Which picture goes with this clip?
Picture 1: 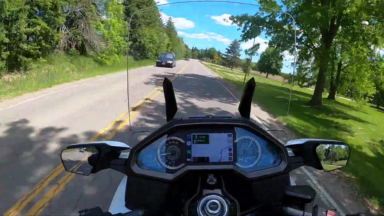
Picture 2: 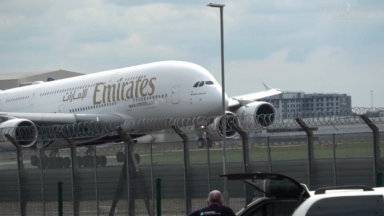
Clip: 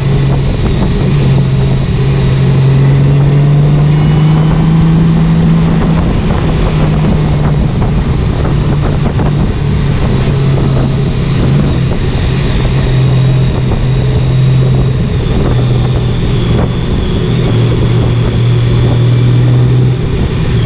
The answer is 1